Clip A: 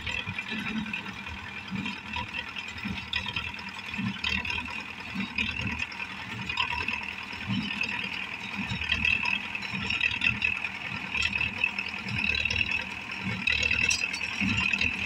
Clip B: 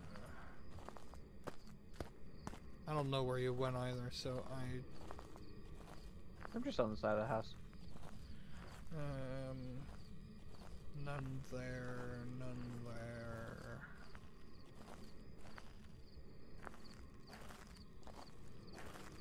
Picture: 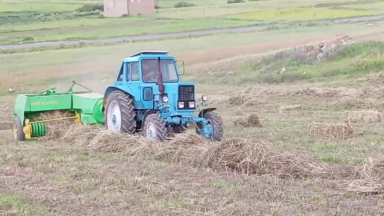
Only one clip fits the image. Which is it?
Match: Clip A